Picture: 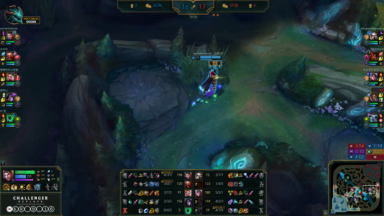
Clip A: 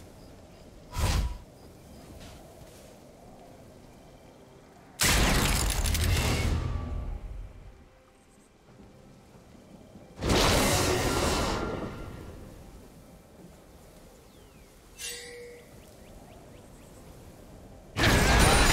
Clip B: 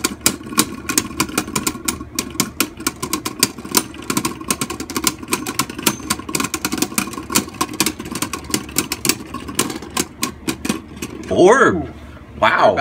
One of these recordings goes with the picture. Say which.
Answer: A